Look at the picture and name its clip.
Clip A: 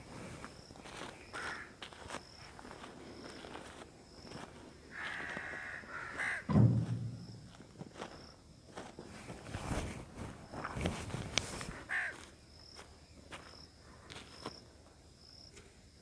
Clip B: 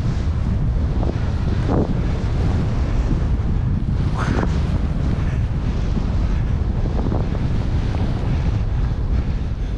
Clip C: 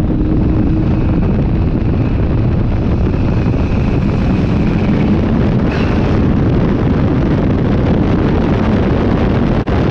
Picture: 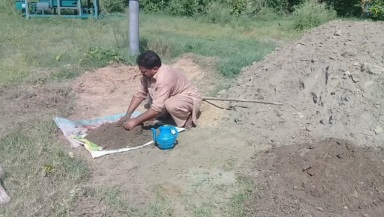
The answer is A